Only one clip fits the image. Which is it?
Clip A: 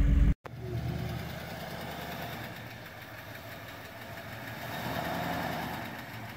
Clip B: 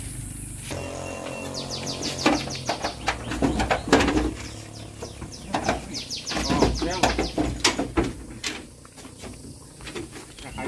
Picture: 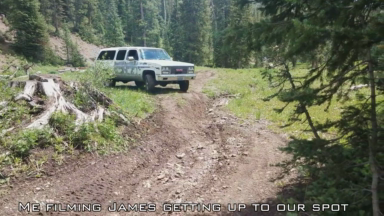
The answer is A